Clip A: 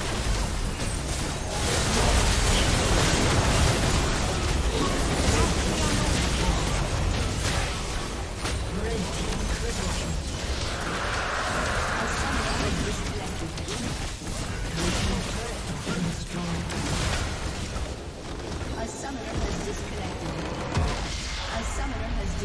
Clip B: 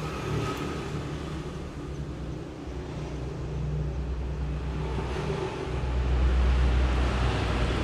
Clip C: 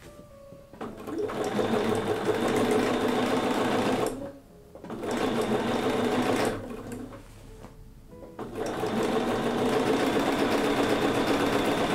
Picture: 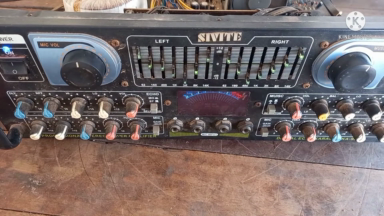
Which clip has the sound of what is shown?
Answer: B